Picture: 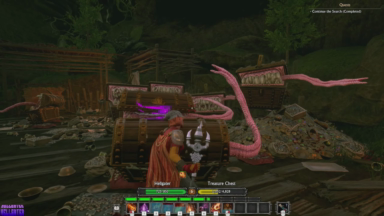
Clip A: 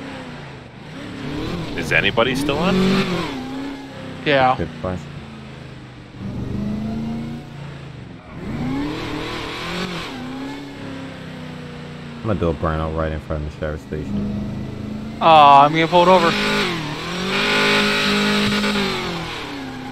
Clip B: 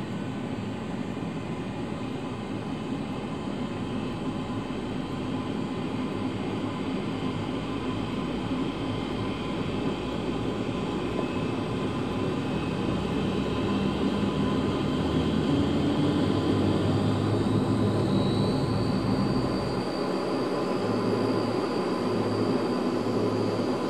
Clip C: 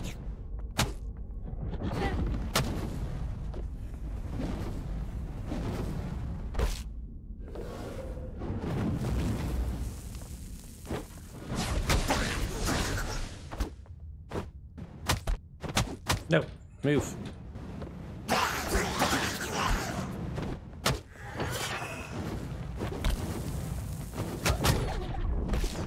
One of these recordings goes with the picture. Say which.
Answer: C